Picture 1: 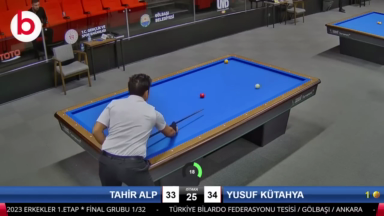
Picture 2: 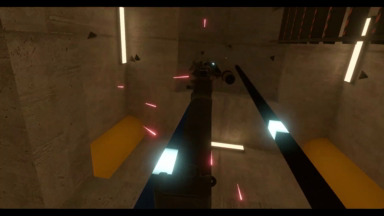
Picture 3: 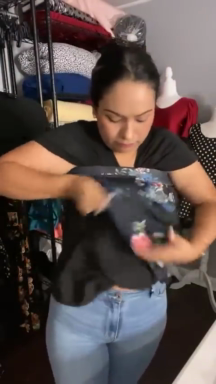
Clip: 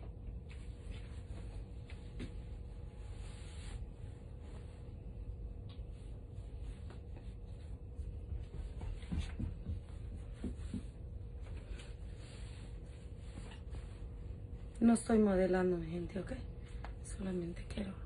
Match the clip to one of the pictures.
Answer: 3